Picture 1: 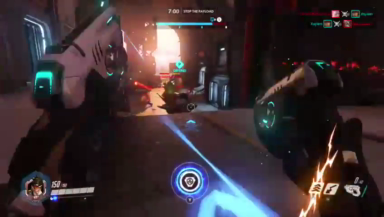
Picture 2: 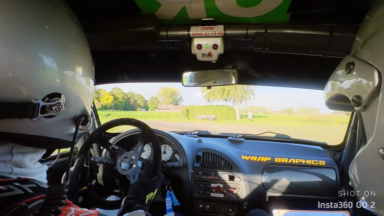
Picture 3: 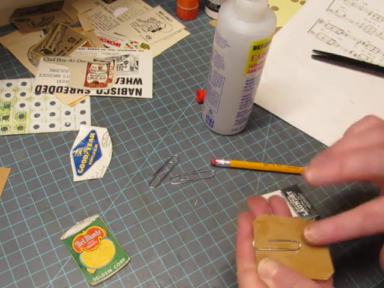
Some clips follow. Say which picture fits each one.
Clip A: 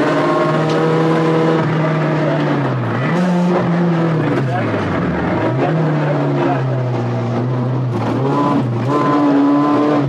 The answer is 2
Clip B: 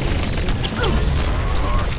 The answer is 1